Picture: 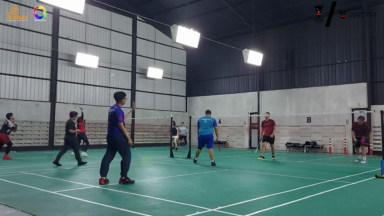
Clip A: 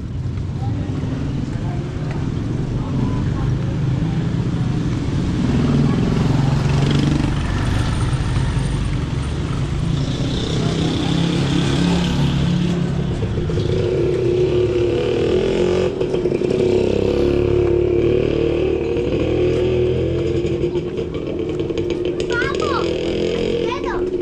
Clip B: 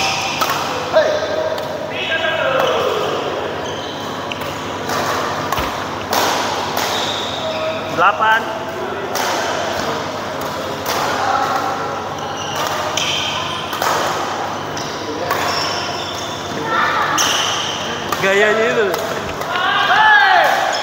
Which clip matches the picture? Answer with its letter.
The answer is B